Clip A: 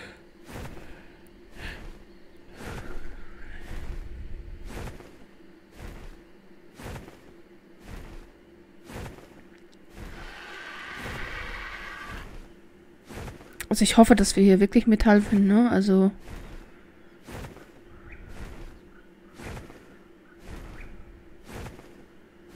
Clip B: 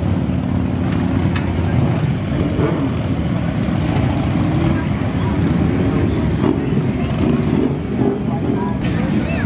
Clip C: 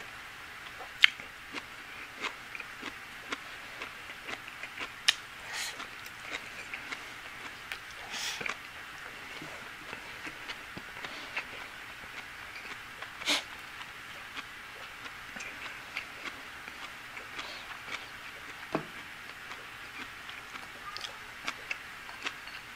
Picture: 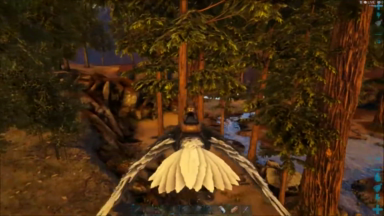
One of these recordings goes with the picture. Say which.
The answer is A